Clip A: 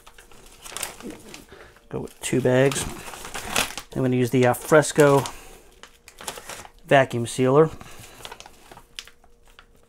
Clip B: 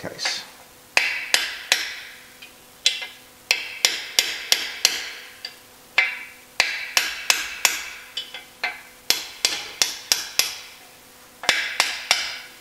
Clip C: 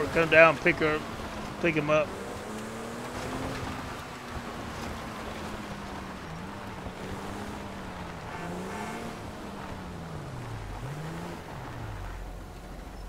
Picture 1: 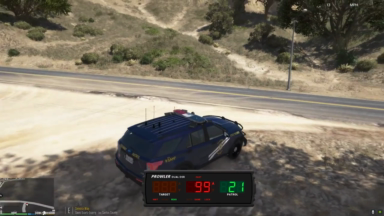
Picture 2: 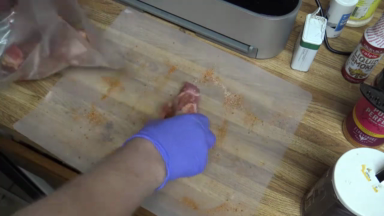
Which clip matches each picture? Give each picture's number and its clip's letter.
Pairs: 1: C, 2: A